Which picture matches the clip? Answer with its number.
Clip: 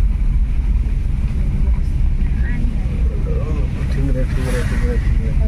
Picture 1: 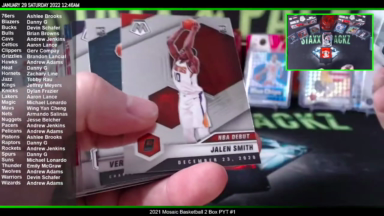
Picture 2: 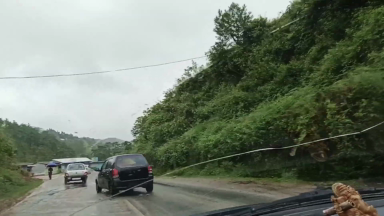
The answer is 2